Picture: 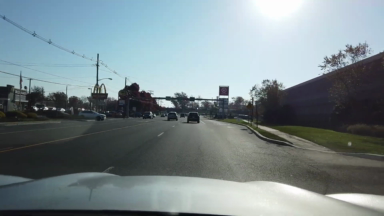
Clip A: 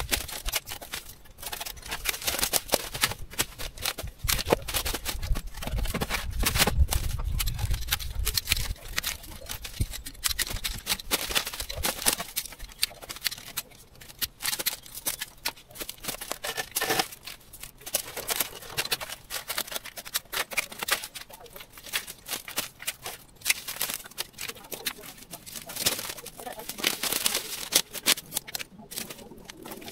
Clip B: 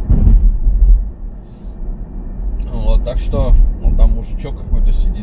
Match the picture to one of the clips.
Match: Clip B